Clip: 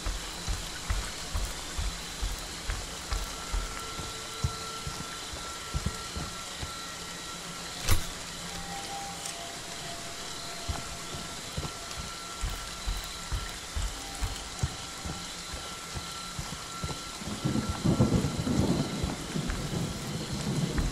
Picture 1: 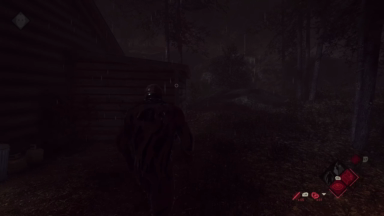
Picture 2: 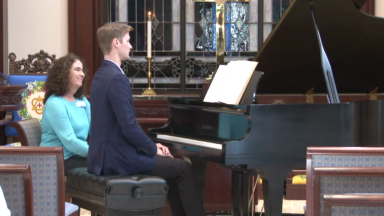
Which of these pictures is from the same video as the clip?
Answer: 1